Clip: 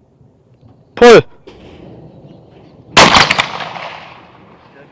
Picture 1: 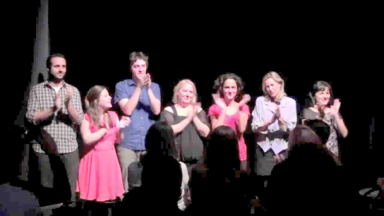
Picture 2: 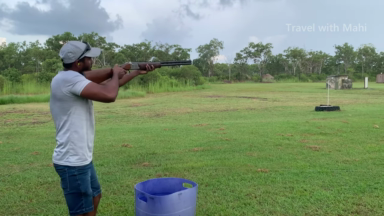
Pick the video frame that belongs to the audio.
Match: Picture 2